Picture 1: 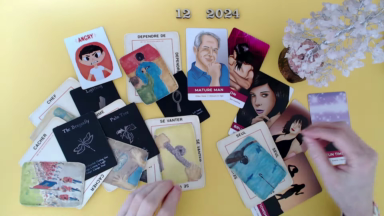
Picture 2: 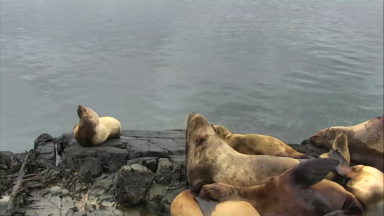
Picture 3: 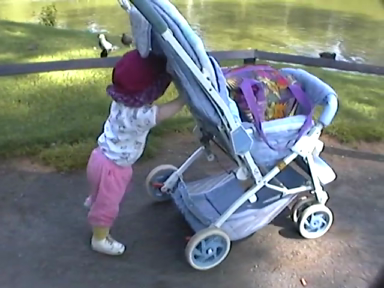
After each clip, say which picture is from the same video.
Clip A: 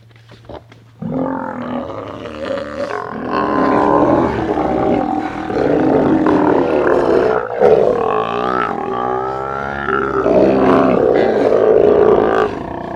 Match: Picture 2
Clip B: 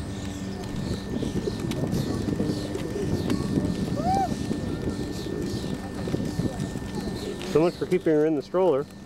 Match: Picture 3